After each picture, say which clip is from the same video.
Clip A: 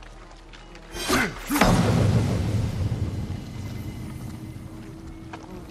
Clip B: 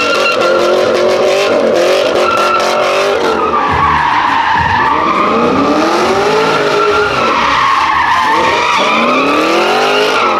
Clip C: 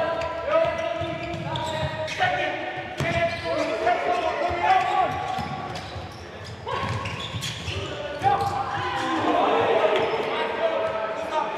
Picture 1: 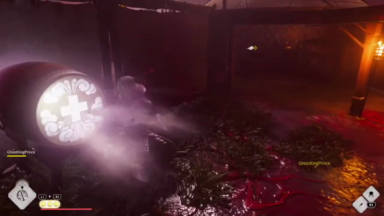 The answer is A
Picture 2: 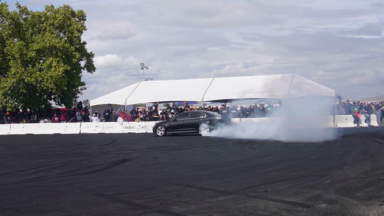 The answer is B